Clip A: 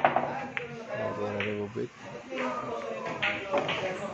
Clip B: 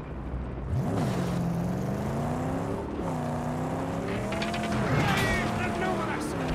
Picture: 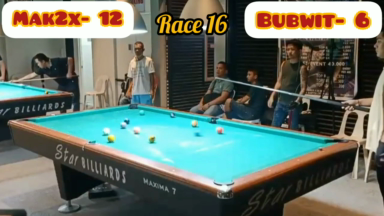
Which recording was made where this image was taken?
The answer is A